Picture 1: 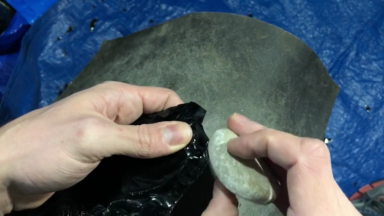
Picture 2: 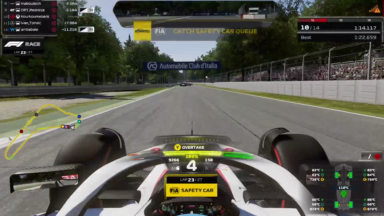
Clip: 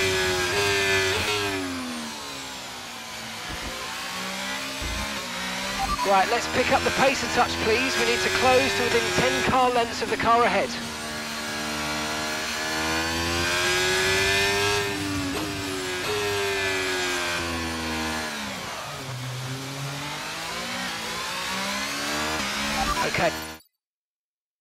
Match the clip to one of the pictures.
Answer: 2